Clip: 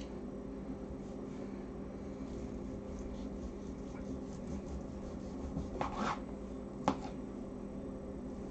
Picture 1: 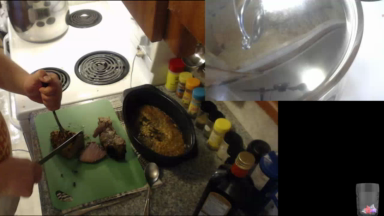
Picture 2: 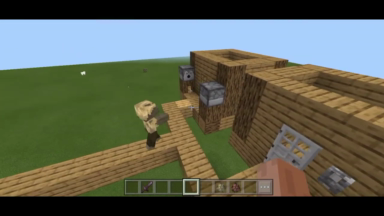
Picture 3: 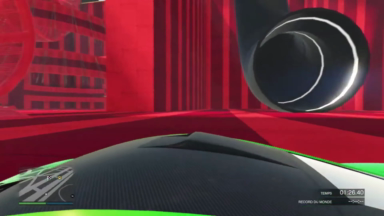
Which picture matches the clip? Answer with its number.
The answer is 1